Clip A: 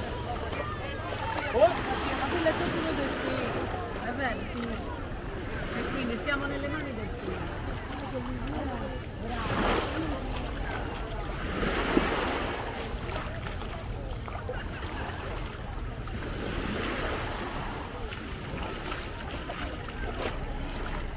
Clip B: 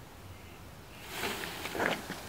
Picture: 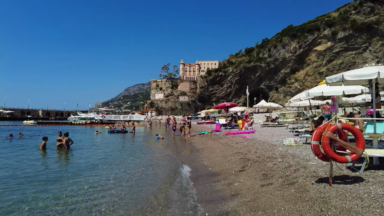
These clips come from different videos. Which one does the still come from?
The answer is A